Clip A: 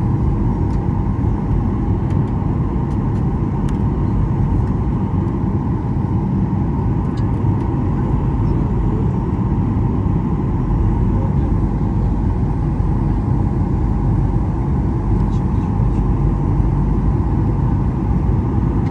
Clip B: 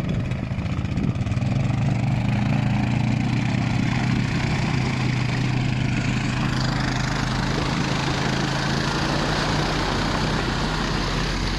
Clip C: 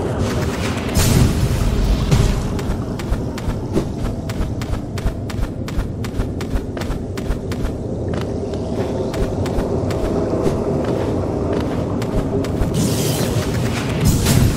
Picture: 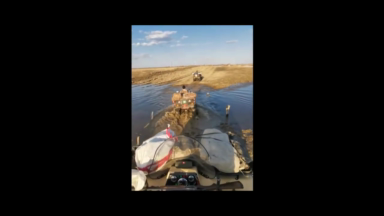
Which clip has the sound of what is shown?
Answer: B